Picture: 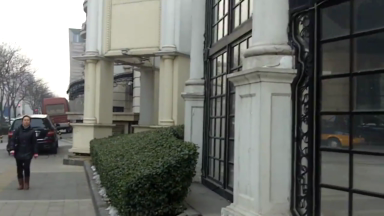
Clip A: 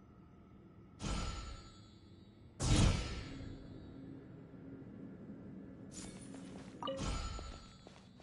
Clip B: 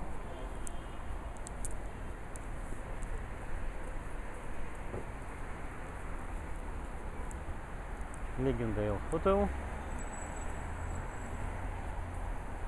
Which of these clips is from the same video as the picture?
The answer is B